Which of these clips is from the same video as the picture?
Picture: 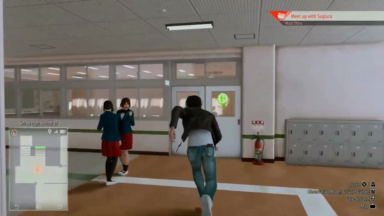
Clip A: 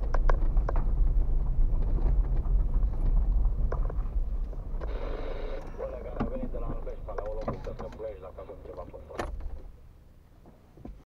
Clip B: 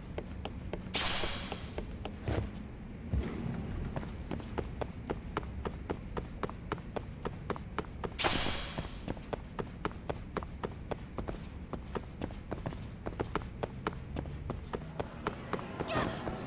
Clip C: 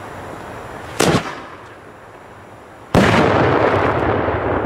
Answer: B